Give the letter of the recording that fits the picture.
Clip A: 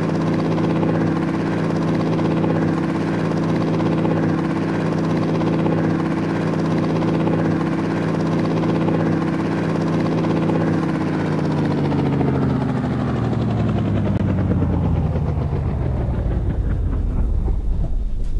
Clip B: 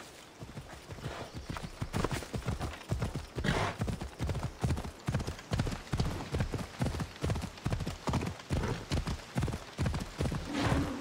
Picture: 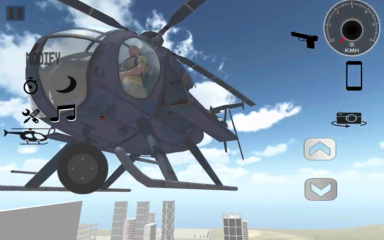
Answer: A